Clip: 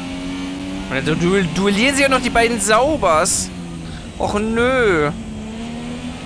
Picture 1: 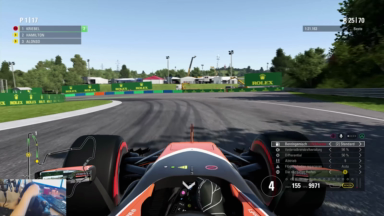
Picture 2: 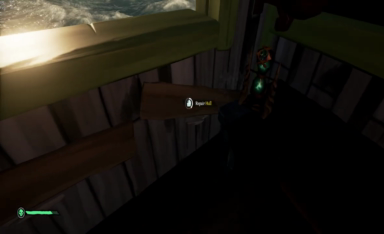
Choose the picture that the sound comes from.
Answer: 1